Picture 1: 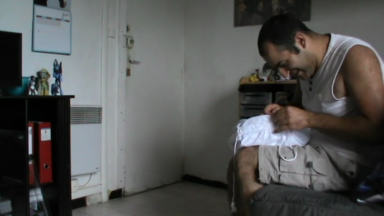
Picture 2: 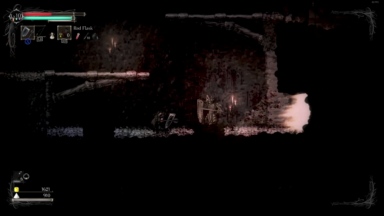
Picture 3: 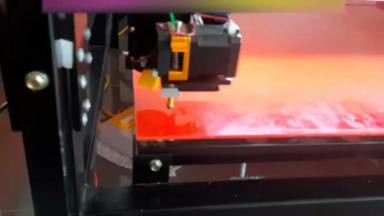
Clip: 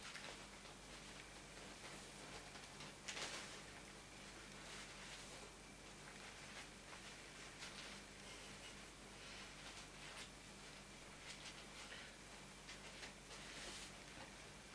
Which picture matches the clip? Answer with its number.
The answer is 1